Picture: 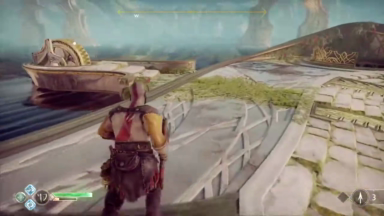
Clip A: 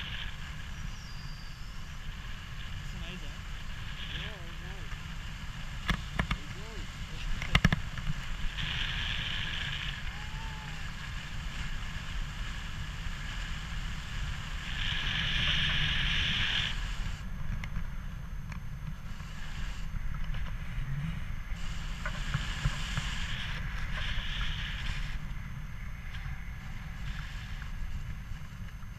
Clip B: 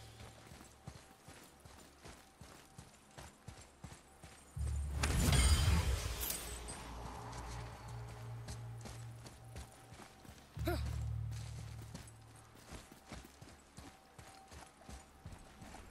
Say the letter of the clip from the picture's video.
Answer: B